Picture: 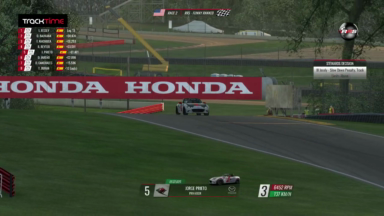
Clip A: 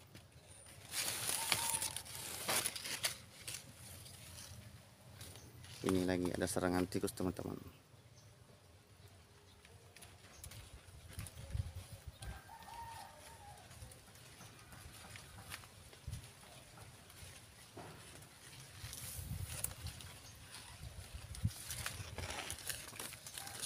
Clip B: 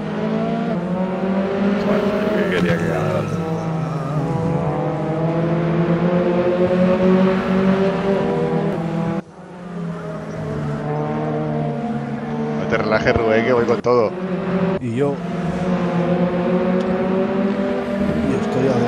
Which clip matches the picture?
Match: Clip B